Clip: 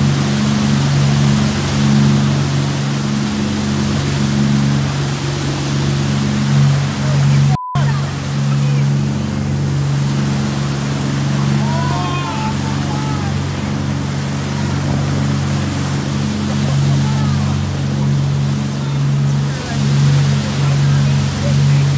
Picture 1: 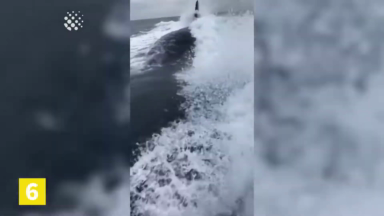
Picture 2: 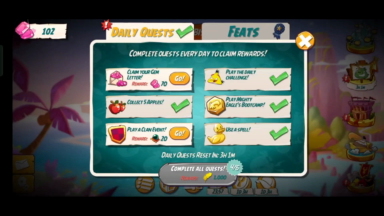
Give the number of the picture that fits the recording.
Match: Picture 1